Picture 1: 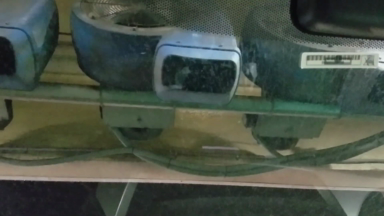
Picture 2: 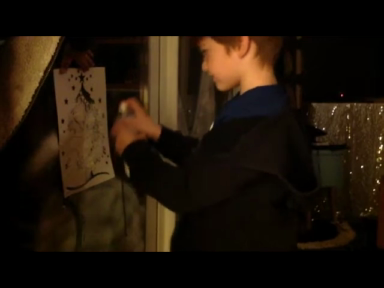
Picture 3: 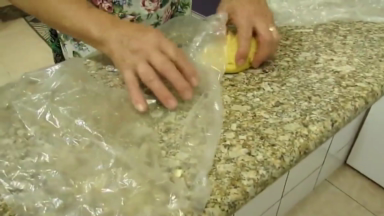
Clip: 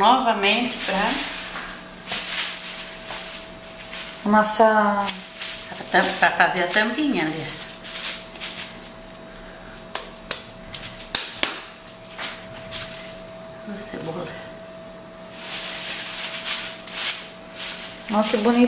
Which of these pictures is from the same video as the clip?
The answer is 3